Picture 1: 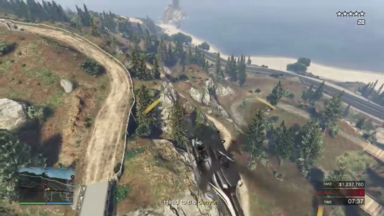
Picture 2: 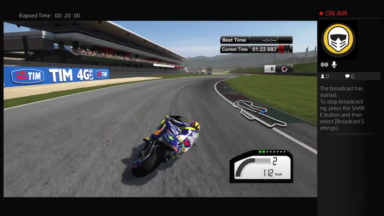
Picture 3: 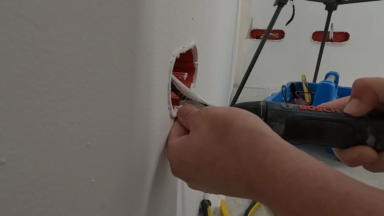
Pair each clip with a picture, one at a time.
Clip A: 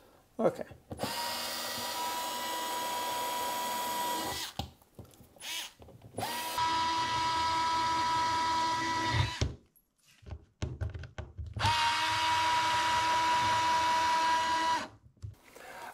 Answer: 3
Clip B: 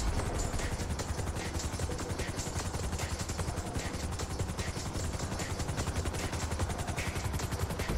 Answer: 1